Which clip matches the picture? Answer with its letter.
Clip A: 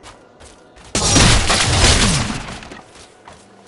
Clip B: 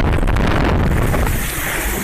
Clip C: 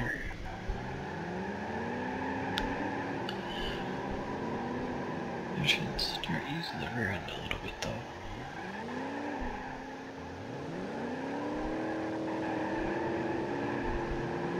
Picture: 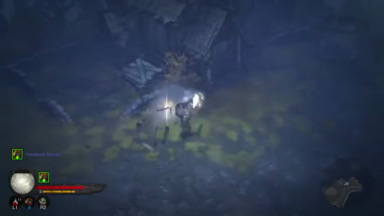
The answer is A